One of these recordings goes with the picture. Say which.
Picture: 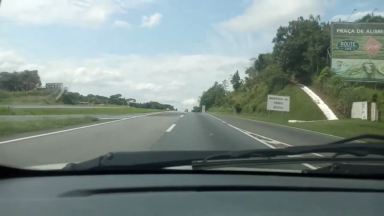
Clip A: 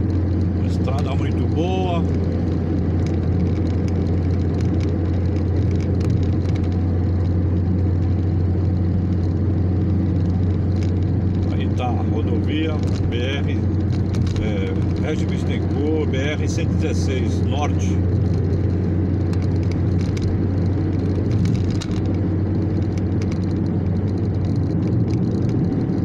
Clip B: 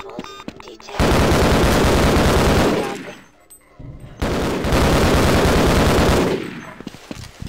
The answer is A